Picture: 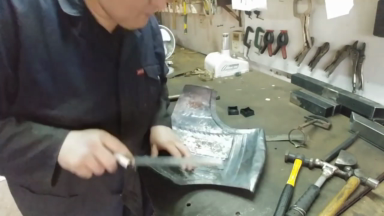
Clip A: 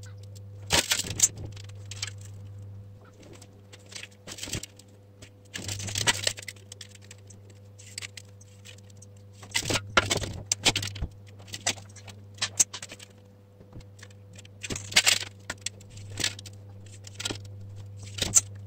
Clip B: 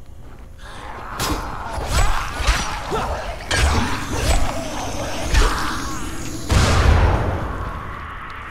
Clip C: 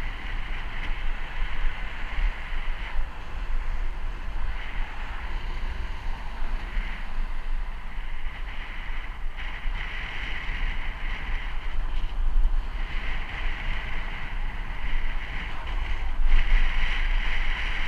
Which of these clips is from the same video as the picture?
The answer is A